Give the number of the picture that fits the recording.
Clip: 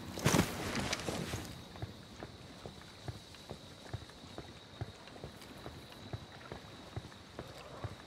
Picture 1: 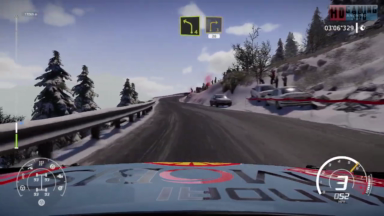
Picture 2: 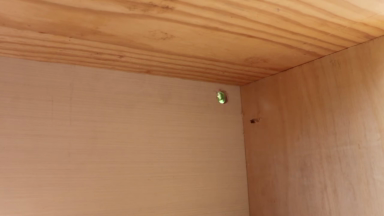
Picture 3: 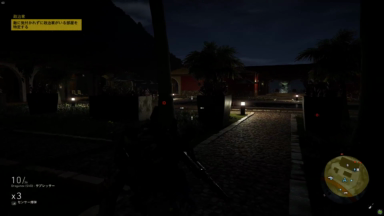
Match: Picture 3